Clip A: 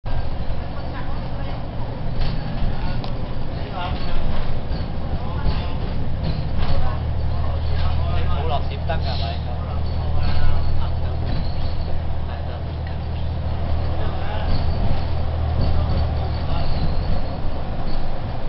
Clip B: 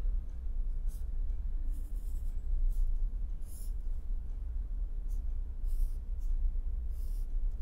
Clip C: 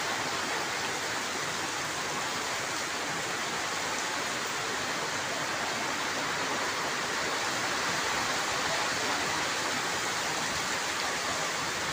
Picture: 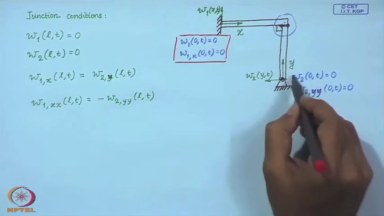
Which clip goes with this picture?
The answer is B